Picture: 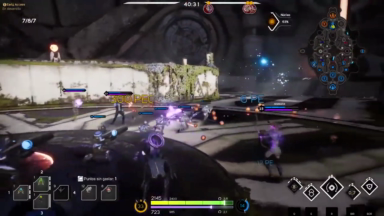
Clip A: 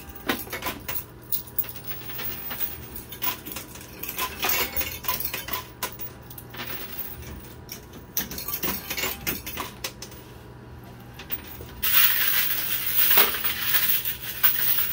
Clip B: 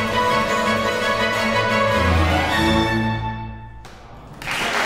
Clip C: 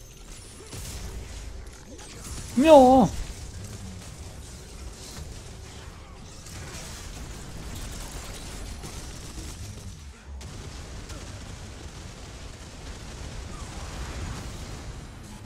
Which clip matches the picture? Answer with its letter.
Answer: C